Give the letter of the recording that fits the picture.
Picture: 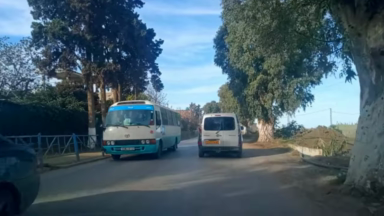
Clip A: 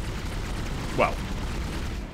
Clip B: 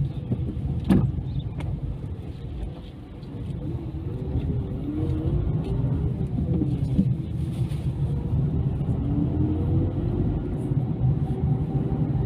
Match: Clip B